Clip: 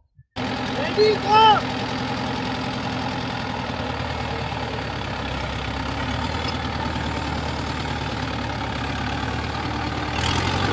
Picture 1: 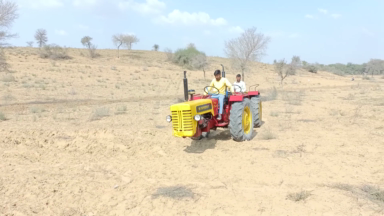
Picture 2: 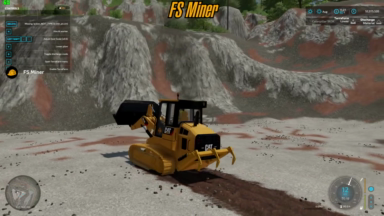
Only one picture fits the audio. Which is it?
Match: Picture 1